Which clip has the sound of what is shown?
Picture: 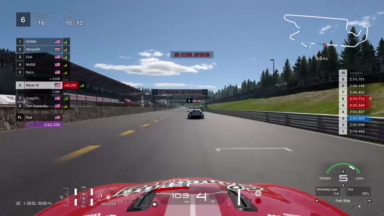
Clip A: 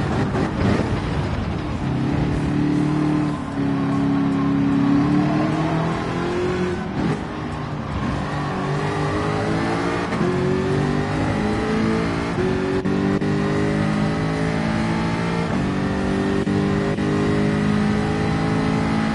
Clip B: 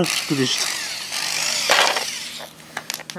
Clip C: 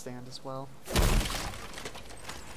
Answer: A